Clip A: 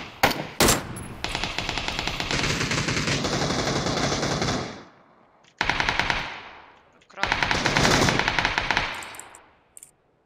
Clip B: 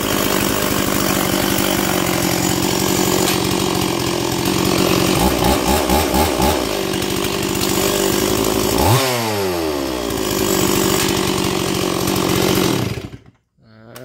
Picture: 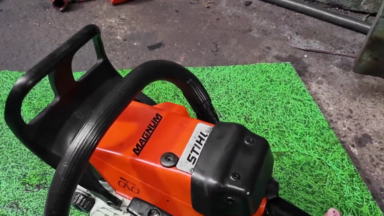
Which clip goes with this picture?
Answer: B